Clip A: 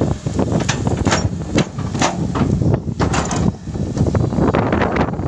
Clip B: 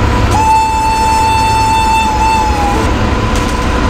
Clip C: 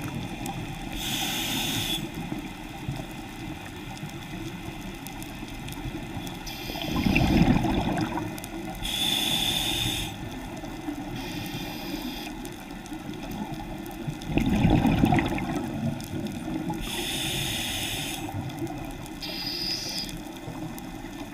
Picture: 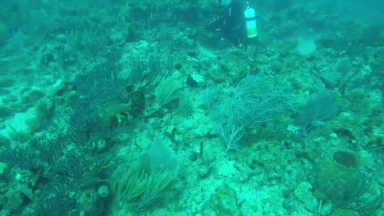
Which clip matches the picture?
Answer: C